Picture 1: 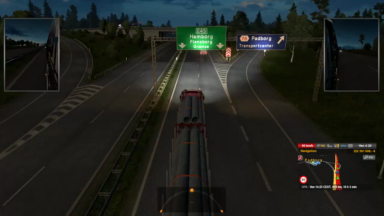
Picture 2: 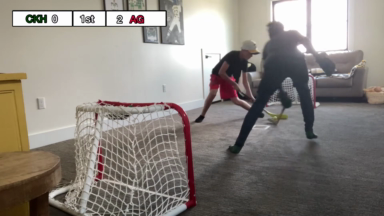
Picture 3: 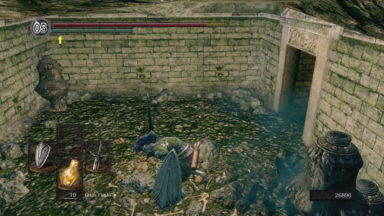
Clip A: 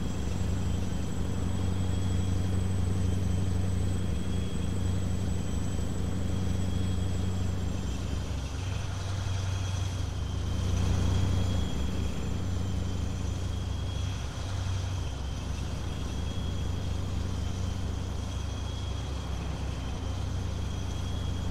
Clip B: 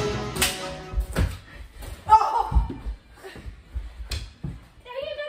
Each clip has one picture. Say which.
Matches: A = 1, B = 2